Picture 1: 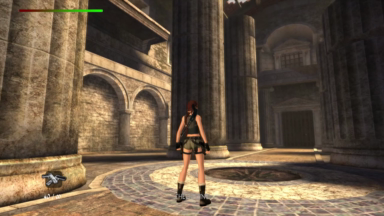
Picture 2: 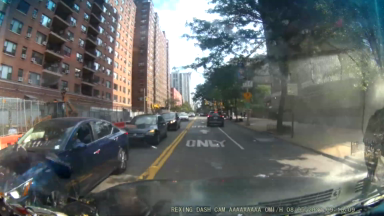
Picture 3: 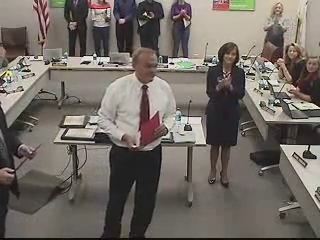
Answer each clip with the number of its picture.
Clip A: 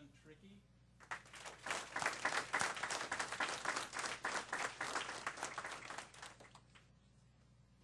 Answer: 3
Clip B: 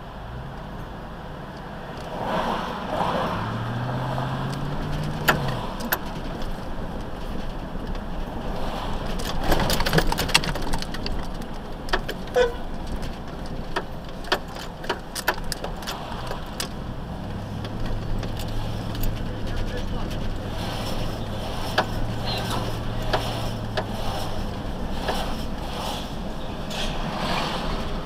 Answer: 2